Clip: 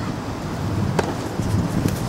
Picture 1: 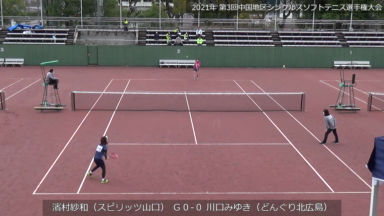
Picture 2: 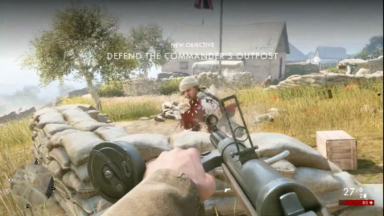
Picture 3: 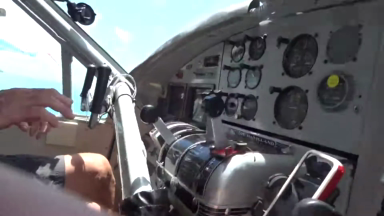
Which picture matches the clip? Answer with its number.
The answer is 1